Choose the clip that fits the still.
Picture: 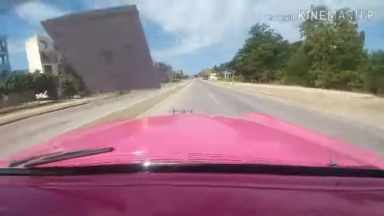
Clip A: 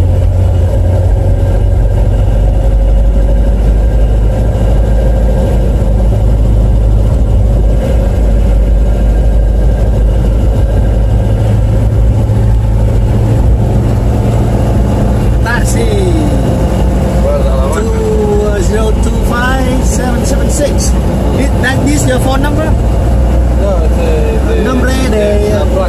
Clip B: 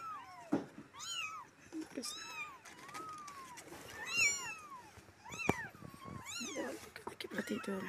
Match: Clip A